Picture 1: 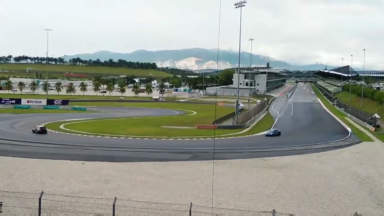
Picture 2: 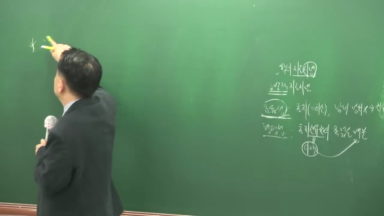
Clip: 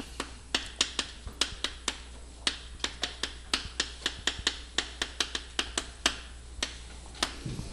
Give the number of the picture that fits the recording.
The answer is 2